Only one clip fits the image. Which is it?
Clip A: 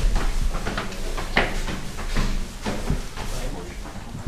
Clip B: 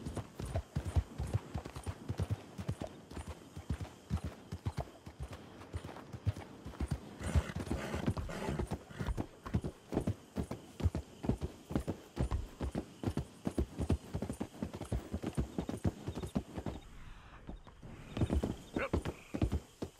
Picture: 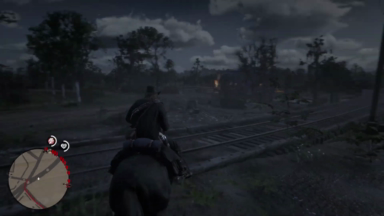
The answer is B